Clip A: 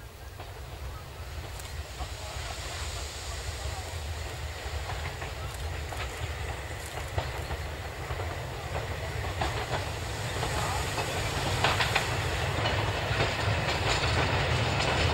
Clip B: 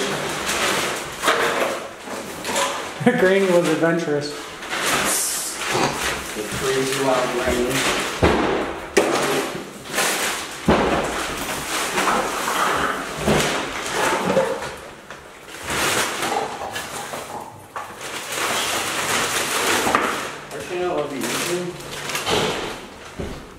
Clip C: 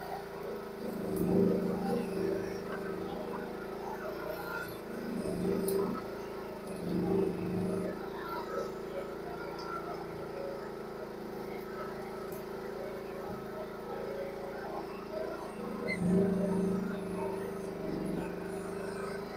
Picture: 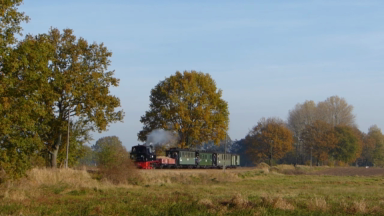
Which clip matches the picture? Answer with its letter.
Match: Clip A